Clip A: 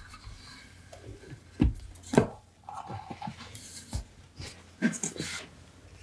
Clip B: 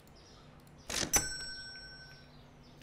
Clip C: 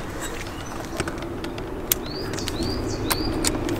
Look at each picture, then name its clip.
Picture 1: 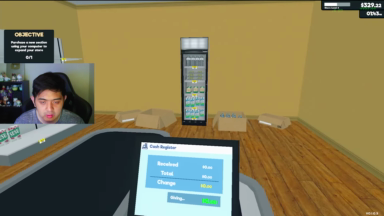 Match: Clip B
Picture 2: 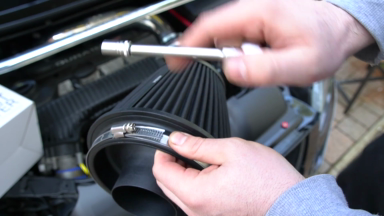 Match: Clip C